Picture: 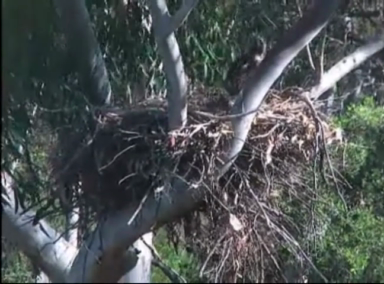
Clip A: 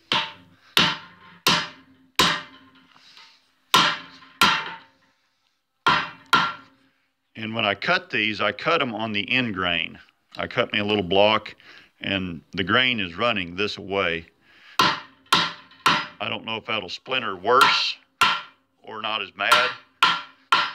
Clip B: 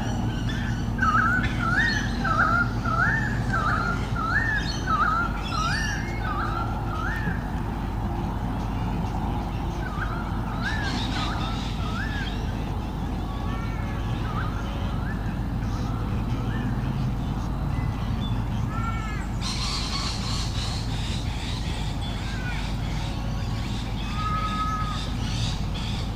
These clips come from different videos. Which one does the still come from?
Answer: B